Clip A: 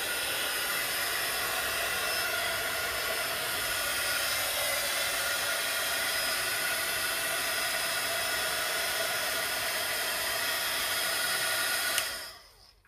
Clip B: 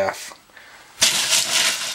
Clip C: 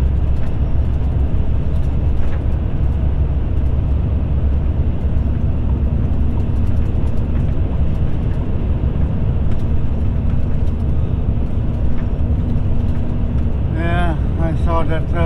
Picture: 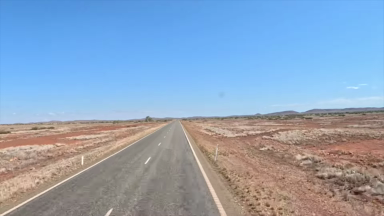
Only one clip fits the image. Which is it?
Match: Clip C